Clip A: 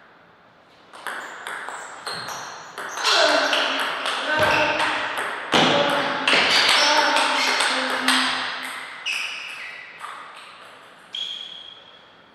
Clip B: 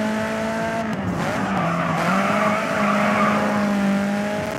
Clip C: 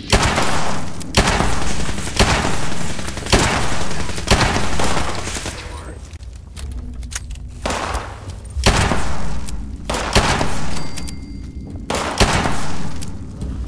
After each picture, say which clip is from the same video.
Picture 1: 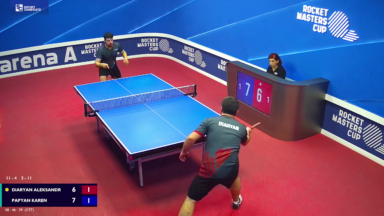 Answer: A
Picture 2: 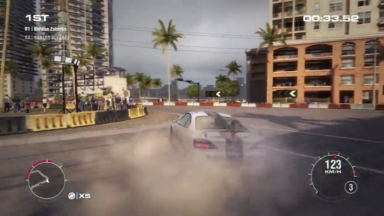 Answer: B